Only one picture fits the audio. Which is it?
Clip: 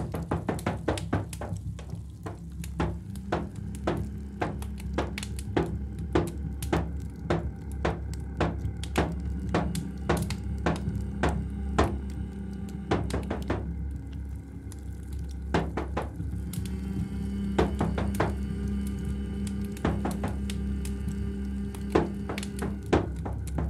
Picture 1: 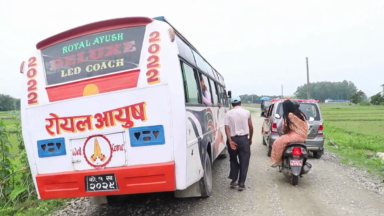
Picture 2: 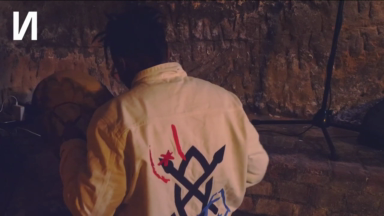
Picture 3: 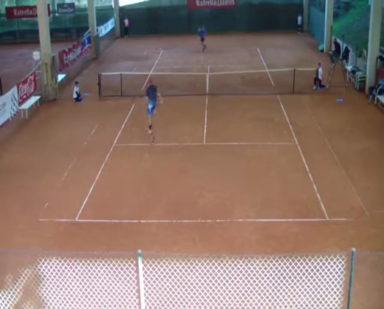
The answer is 2